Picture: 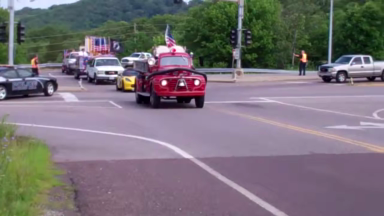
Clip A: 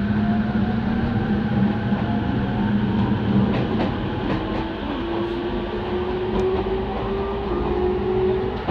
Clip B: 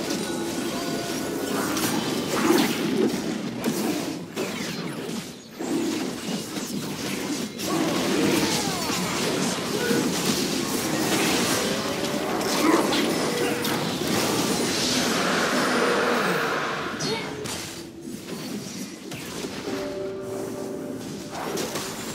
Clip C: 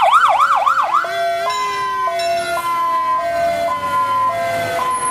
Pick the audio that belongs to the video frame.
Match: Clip C